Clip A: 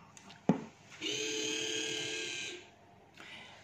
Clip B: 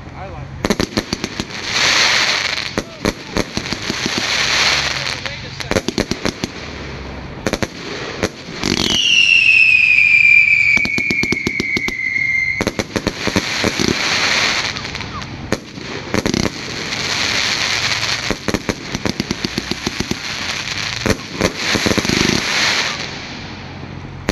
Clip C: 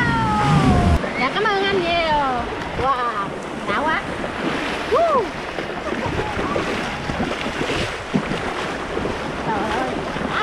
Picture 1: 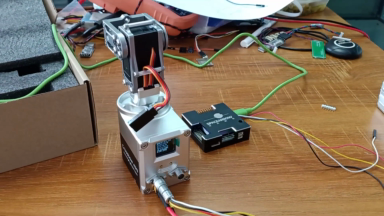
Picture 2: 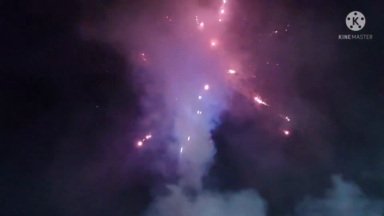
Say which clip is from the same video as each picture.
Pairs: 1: A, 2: B